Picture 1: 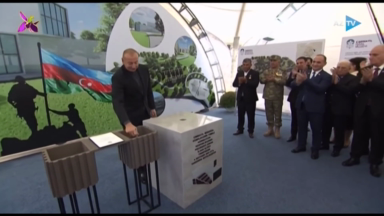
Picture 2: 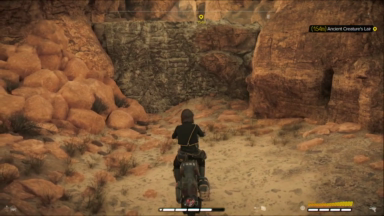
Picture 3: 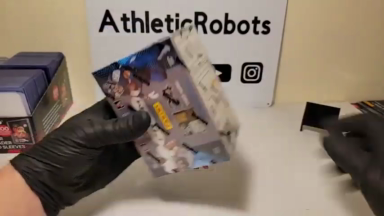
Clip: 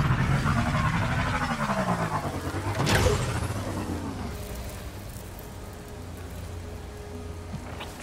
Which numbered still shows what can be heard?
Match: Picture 2